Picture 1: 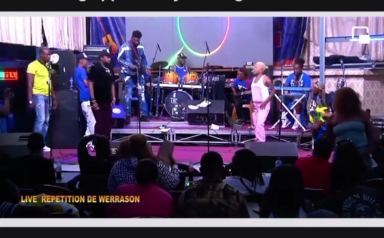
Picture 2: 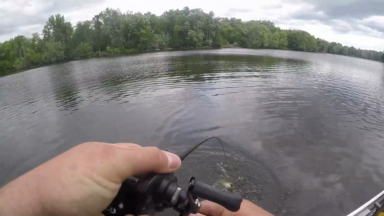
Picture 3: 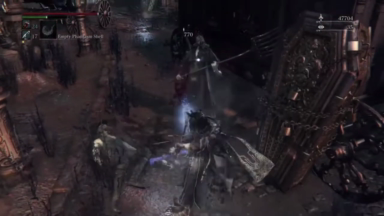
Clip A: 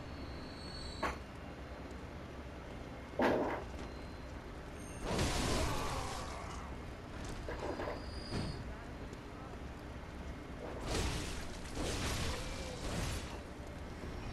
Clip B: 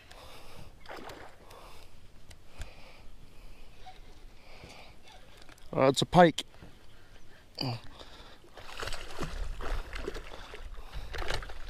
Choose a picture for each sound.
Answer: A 3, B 2